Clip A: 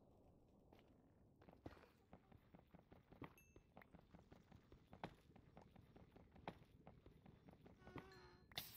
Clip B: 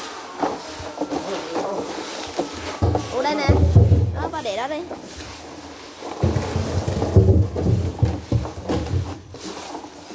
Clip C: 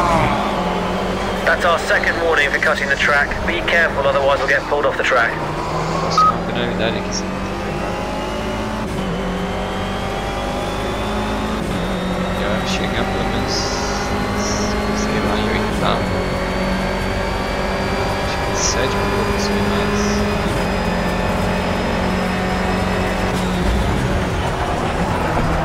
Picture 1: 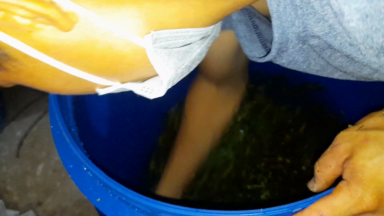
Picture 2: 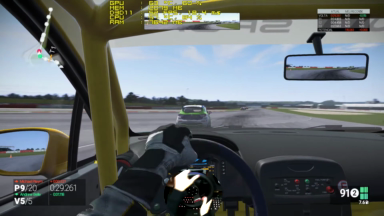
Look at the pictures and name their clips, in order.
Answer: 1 B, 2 C